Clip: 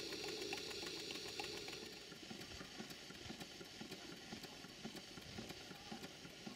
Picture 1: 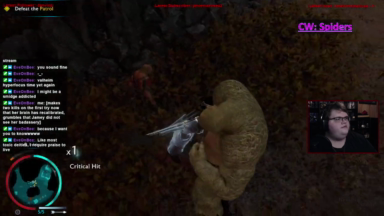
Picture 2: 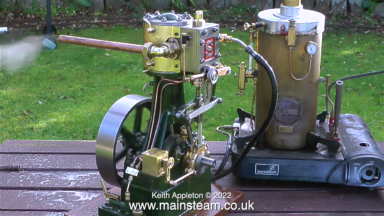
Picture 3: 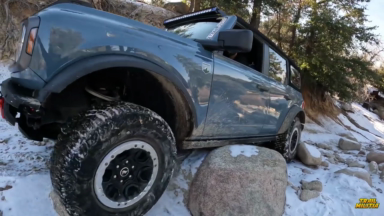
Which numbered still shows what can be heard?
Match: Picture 2